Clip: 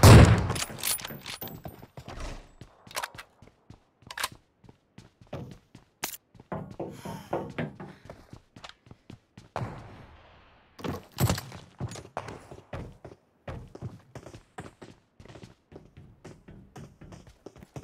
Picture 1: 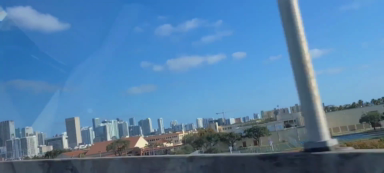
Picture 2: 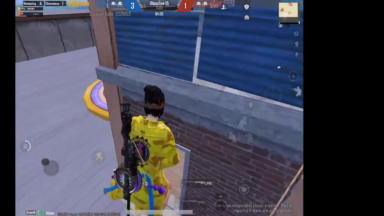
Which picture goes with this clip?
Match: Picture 2